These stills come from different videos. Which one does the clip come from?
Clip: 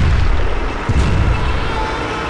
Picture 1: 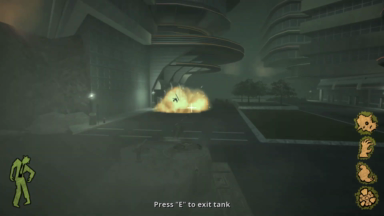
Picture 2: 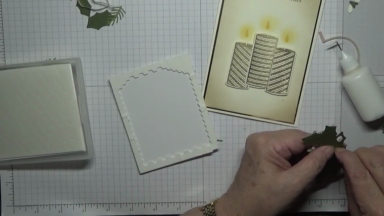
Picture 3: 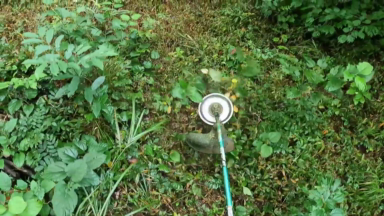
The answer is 1